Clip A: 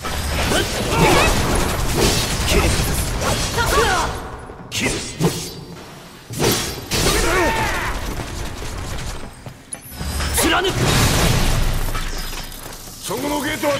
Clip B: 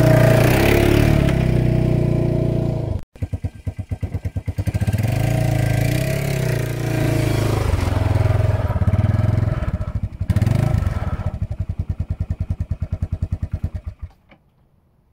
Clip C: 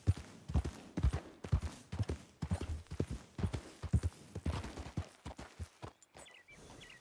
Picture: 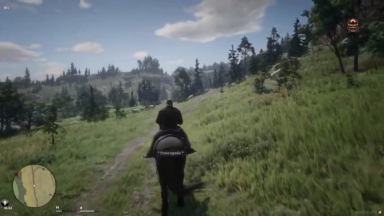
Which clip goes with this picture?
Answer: C